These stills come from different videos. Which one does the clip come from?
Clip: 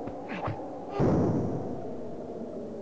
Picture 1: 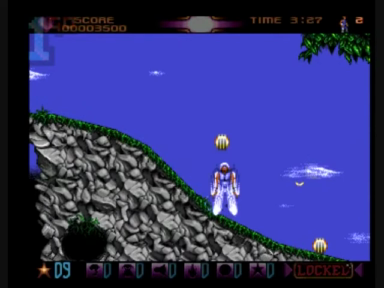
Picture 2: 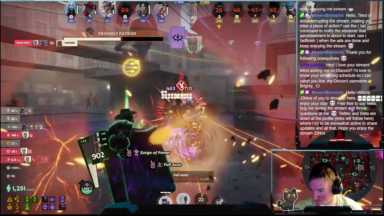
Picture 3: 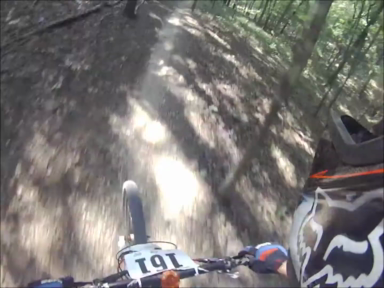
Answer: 1